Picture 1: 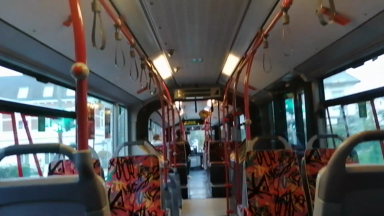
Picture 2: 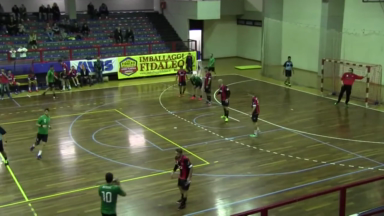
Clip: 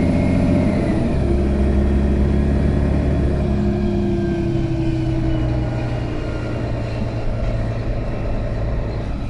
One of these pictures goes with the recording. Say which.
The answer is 1